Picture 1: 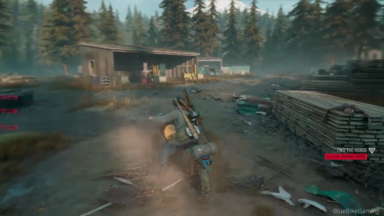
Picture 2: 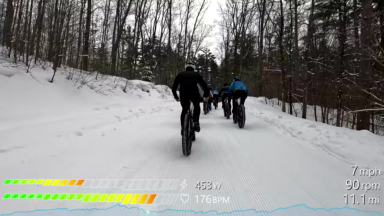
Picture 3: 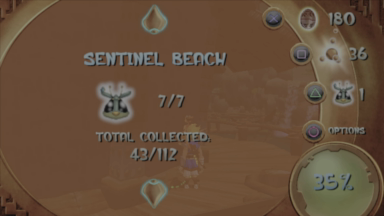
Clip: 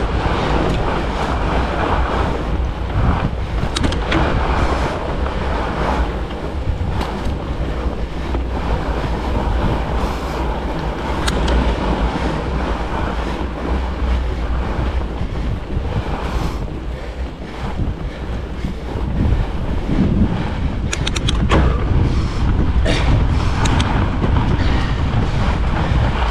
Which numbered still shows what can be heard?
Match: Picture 2